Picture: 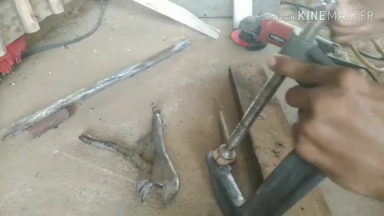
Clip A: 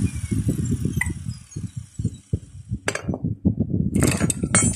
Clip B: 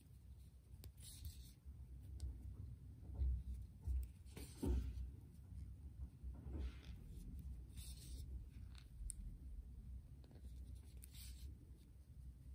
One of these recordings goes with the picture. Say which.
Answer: A